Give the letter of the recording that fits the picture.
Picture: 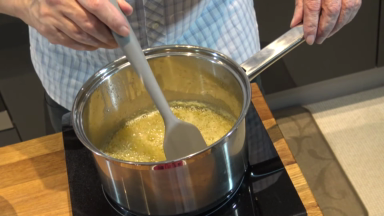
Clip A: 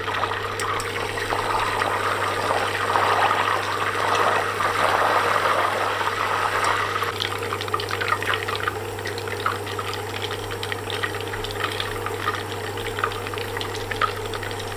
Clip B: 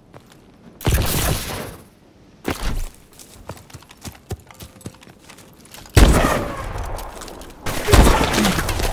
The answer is A